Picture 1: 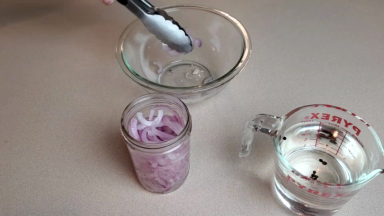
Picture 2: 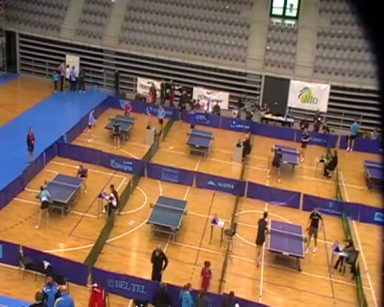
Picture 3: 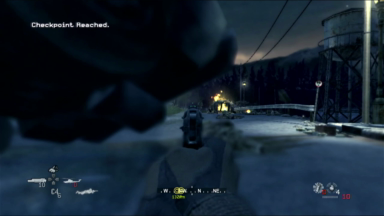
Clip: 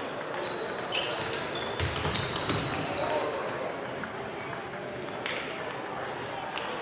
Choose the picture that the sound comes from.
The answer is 2